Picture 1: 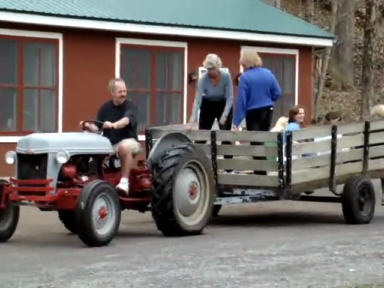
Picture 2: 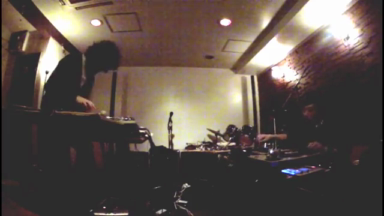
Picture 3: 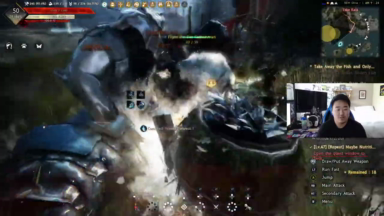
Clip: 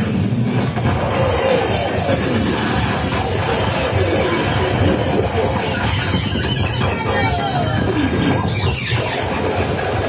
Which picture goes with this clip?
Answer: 2